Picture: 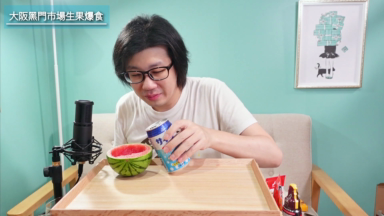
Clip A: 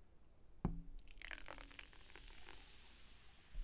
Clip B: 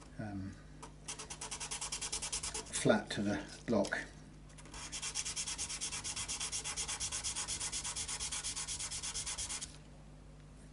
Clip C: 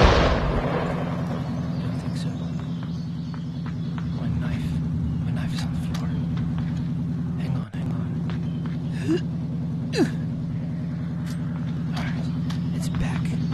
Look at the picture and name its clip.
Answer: A